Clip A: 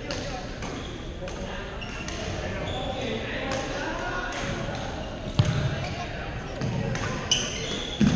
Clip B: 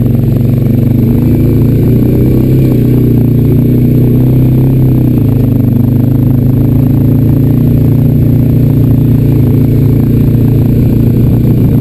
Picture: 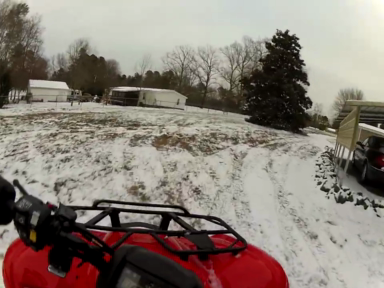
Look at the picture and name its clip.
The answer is B